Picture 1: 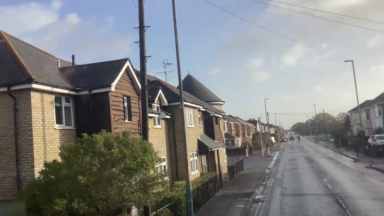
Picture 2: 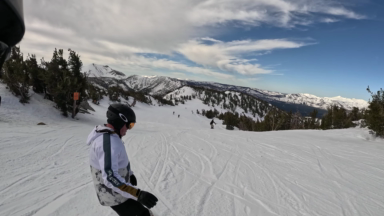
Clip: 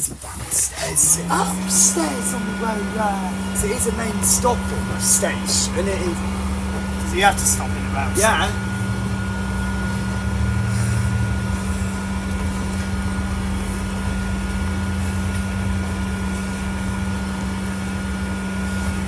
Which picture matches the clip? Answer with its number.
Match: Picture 1